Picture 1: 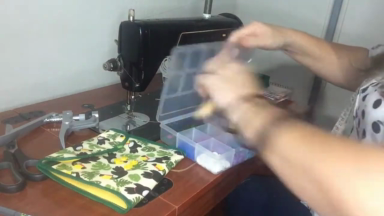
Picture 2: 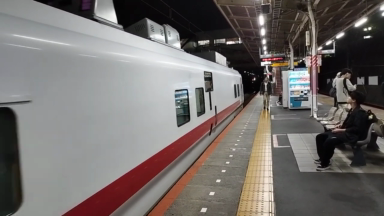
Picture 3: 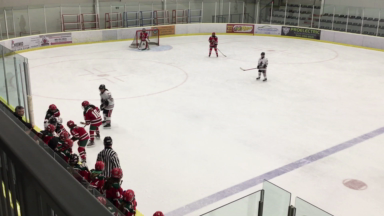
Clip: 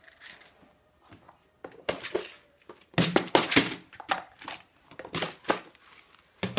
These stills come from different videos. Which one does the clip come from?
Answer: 1